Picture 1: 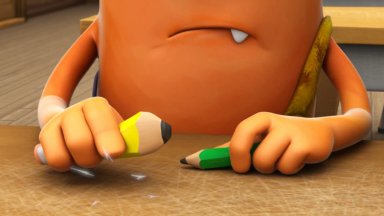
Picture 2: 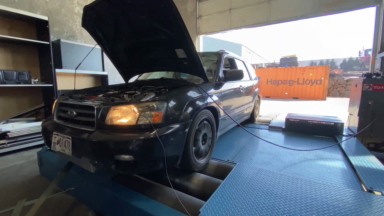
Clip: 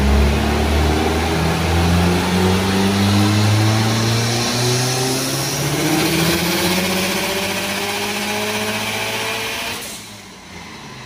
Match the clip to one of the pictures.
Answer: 2